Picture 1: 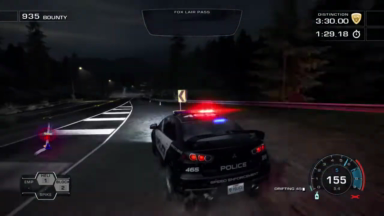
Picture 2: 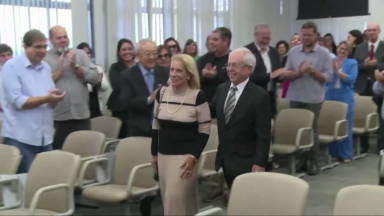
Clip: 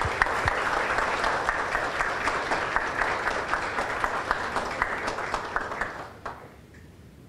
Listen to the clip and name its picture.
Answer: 2